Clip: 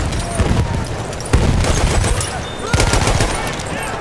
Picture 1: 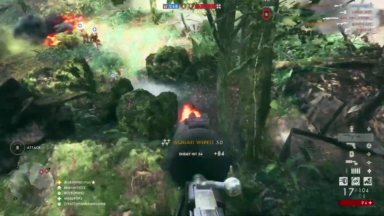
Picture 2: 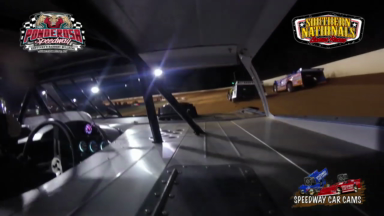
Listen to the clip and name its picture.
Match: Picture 1